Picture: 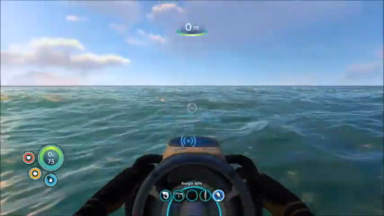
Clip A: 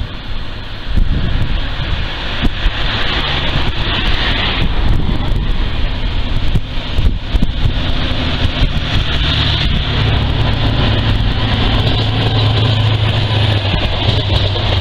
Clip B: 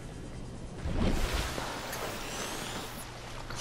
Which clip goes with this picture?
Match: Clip B